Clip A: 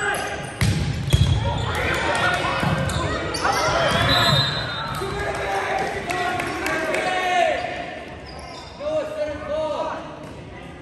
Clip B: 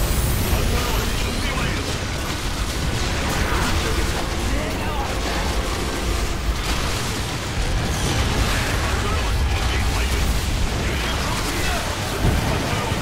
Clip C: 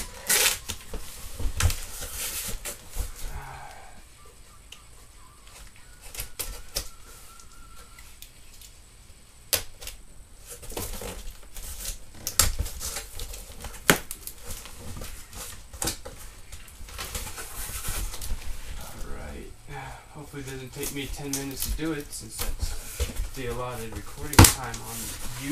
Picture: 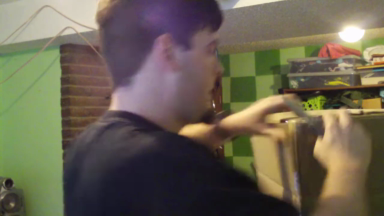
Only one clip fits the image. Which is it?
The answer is C